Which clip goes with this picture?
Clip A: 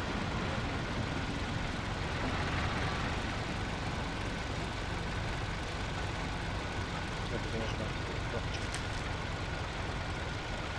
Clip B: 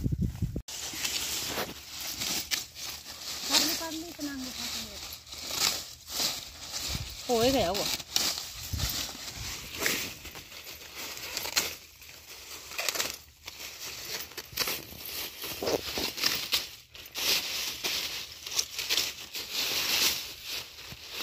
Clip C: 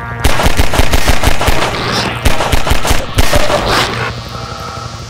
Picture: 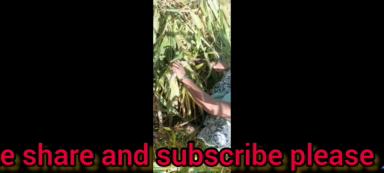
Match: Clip B